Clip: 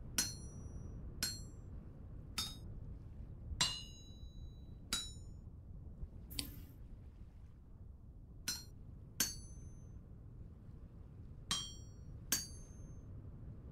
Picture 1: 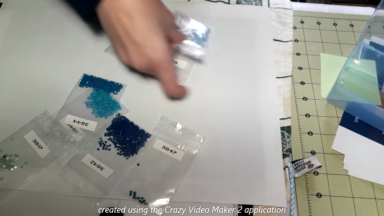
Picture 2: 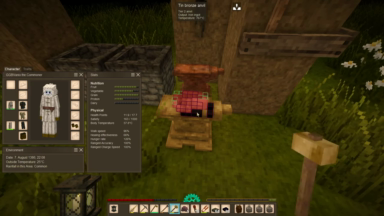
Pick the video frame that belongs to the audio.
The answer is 2